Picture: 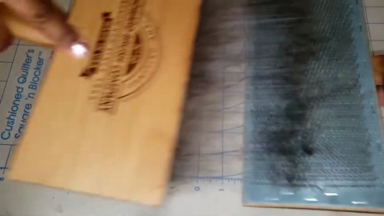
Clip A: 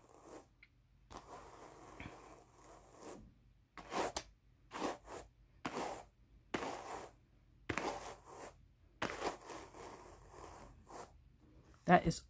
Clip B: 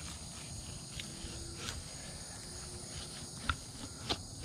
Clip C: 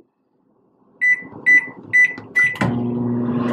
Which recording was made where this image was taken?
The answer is A